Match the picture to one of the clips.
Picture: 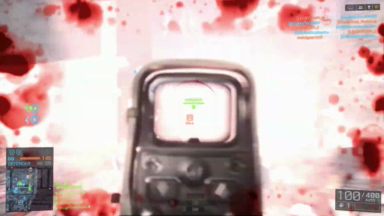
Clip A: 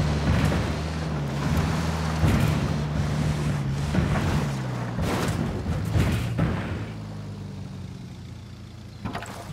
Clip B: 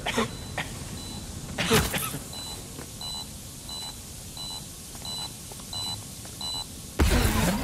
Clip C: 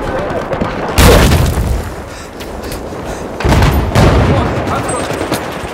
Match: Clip C